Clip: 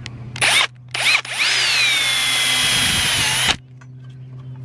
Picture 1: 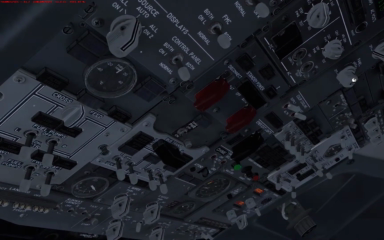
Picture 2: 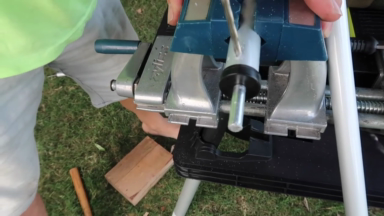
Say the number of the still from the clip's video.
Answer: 2